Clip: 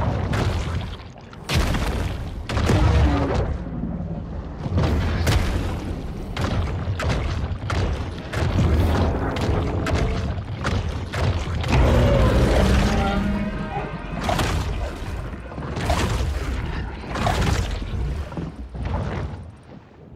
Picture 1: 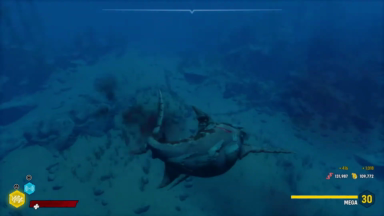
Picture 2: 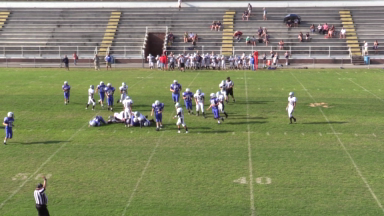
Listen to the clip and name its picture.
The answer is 1